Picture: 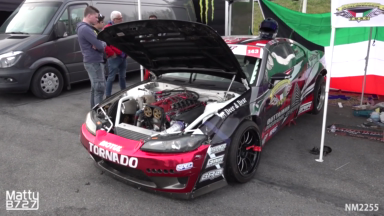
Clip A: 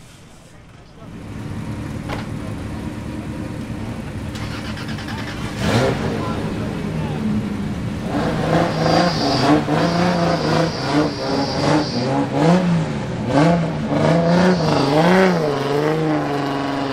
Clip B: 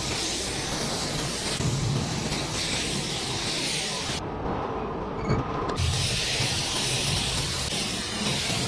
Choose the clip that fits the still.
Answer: A